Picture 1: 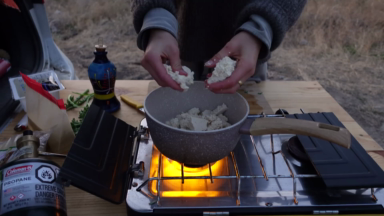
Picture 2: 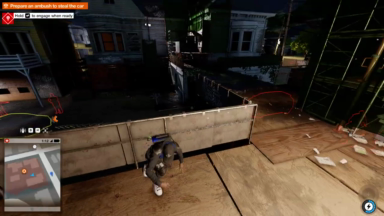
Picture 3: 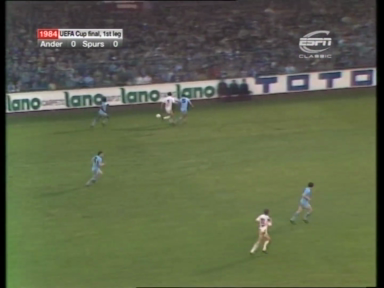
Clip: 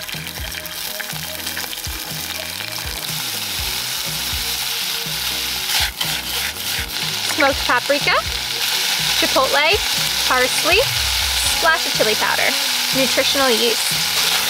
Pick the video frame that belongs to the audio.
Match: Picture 1